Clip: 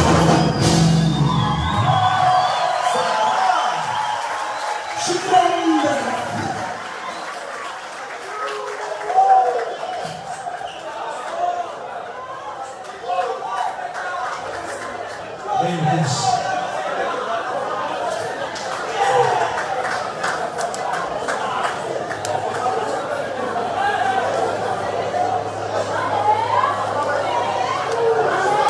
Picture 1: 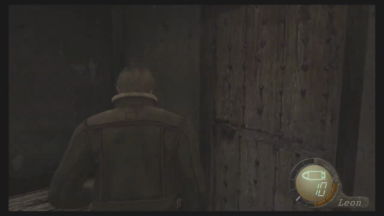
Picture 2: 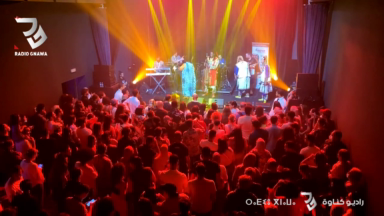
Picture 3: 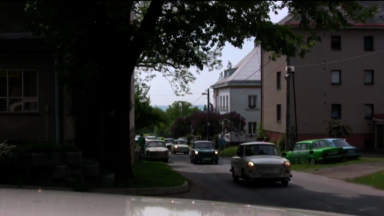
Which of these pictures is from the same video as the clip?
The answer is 2